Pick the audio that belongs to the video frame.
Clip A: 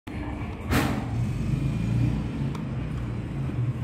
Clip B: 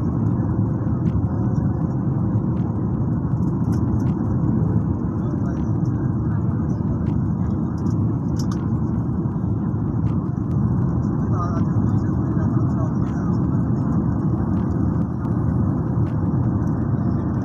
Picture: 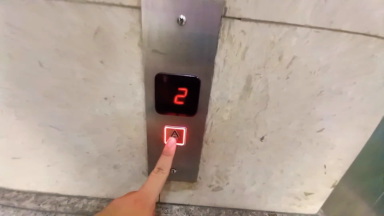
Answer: A